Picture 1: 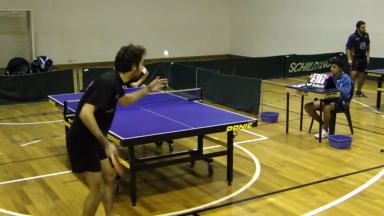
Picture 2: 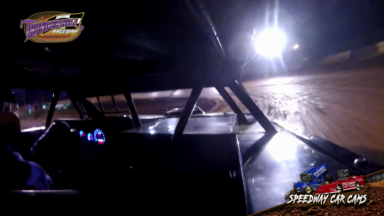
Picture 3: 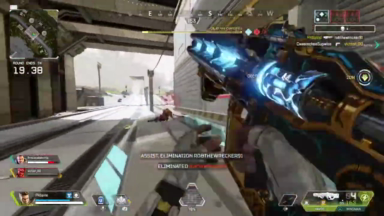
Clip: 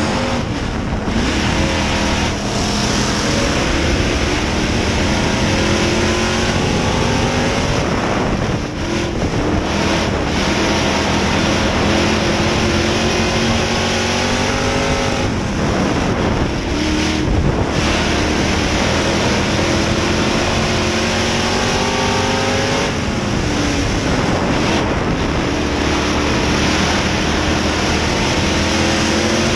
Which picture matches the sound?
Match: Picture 2